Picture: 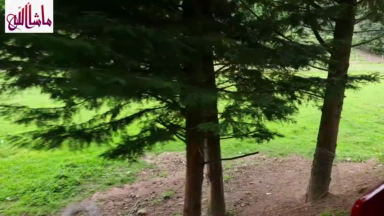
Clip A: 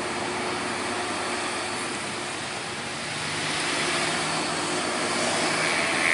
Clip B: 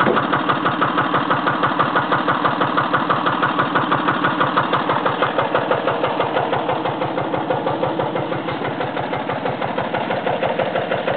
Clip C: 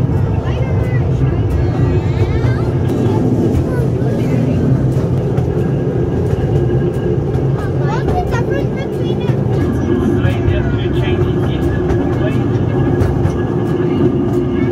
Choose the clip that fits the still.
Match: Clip C